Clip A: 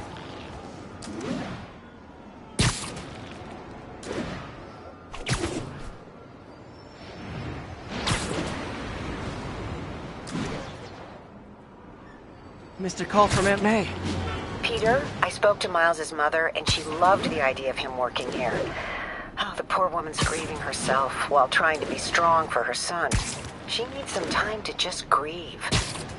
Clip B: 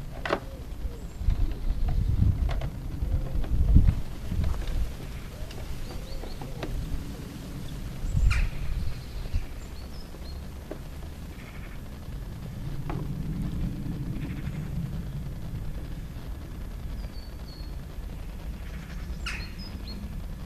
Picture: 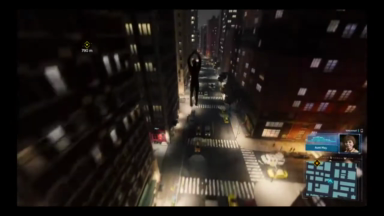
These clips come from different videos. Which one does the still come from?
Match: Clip A